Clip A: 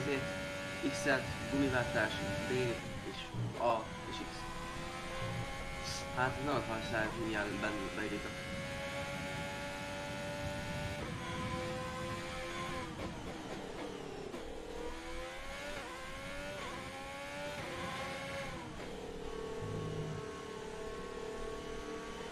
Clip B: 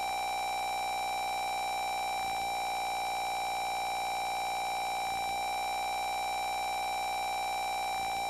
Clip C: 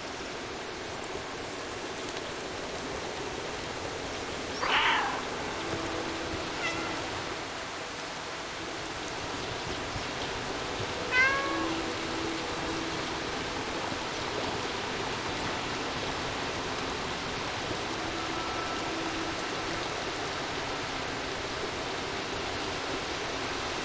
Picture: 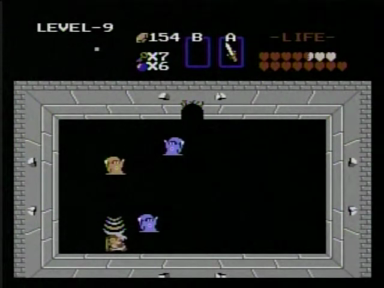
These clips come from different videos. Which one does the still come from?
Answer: B